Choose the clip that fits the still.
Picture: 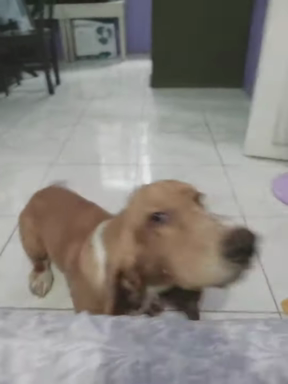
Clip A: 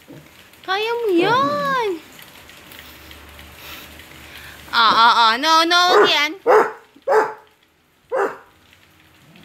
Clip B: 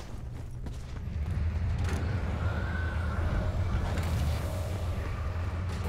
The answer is A